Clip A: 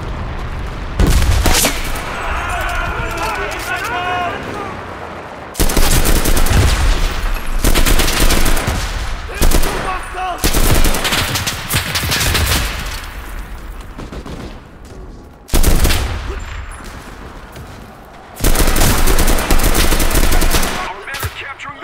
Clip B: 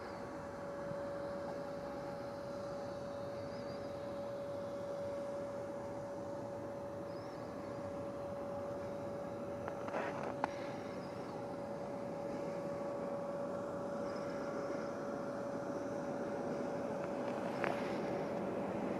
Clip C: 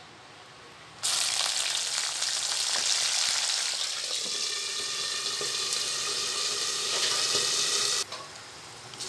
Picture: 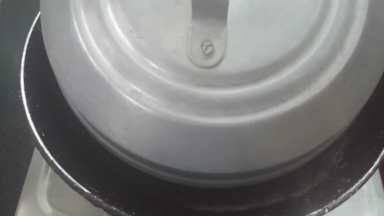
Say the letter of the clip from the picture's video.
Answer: C